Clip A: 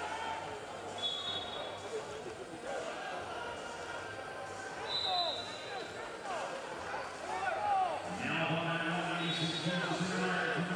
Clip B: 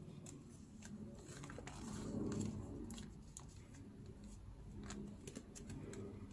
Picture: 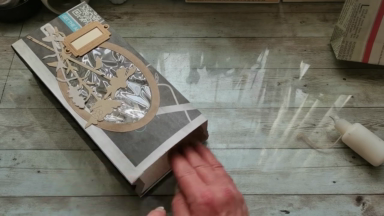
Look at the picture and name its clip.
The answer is B